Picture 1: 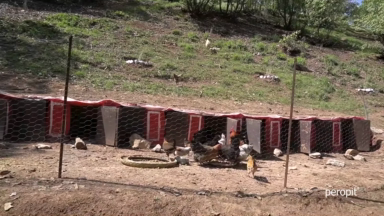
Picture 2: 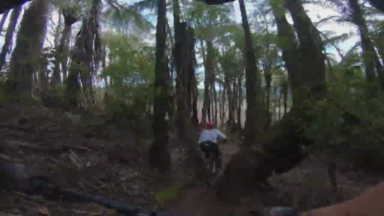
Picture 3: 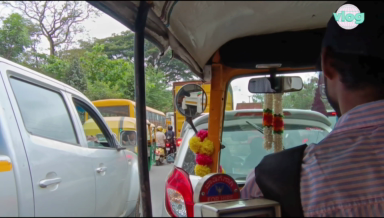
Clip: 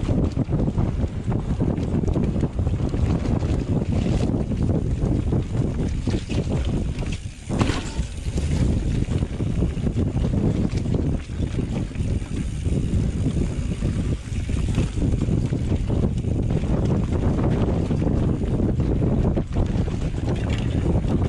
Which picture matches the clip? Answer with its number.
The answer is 2